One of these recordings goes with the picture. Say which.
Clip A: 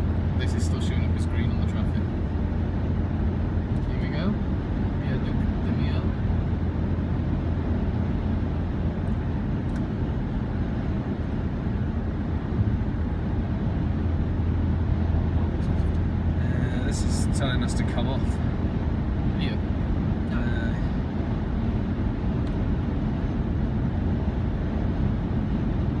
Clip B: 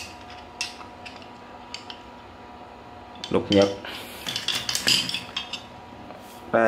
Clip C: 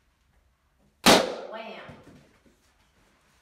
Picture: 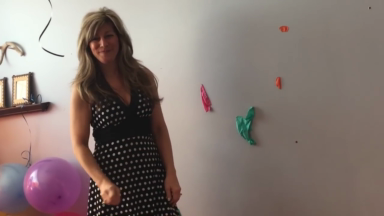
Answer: C